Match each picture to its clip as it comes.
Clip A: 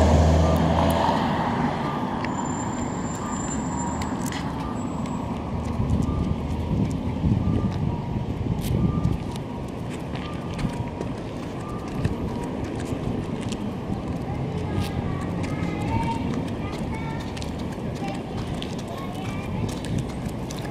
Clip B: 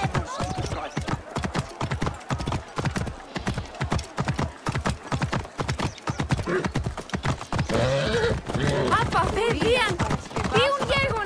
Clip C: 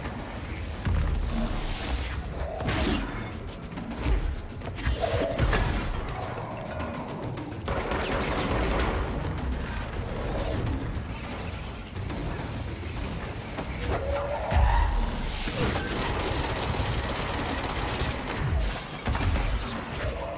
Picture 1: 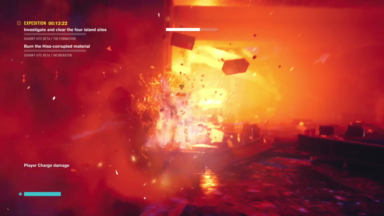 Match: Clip C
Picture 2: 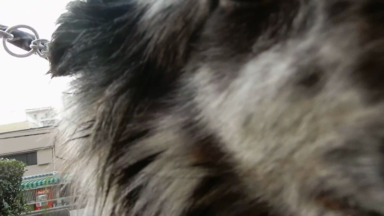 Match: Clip A